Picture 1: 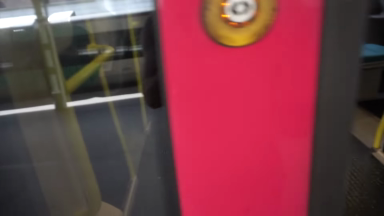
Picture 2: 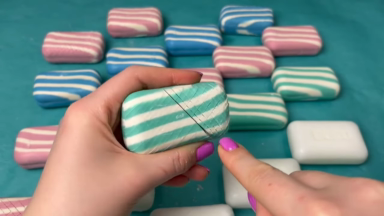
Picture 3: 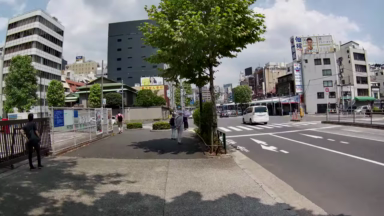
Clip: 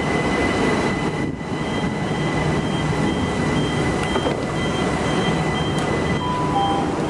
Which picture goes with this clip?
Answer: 1